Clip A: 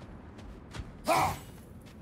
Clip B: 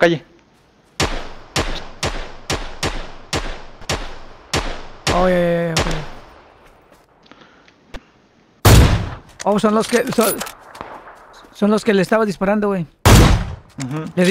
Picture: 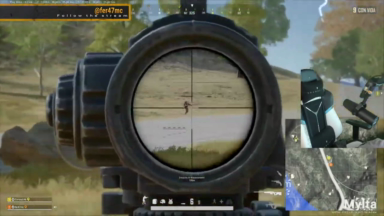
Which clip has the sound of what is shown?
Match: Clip B